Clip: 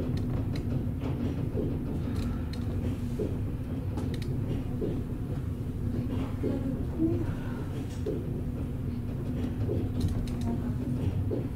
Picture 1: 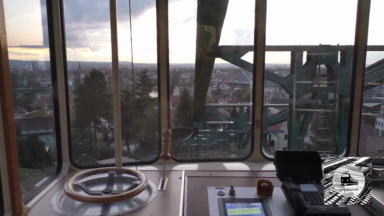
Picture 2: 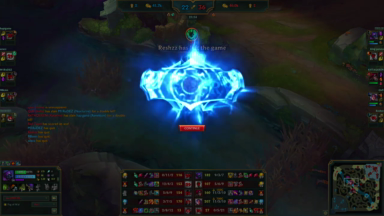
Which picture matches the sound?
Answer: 1